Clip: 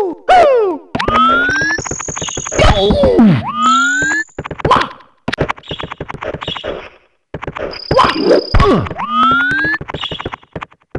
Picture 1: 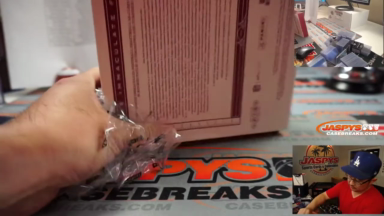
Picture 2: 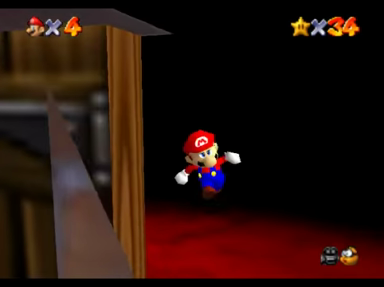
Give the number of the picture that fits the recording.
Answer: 2